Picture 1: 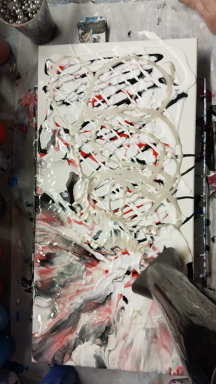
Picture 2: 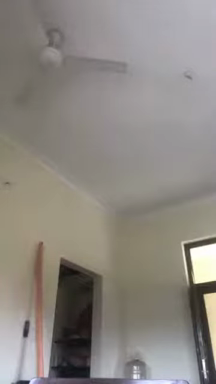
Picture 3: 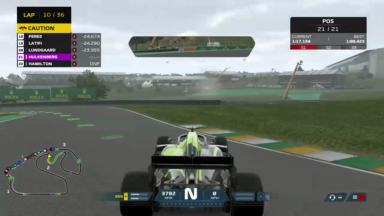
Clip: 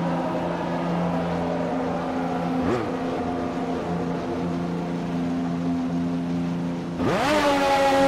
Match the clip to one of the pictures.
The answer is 3